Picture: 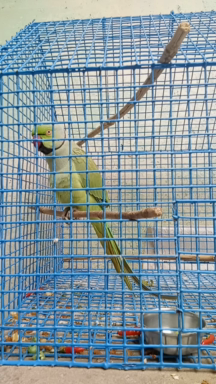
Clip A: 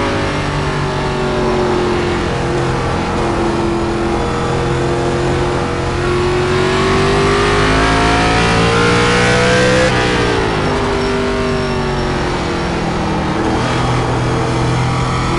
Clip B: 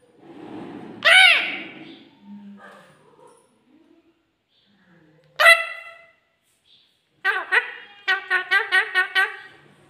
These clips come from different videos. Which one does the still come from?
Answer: B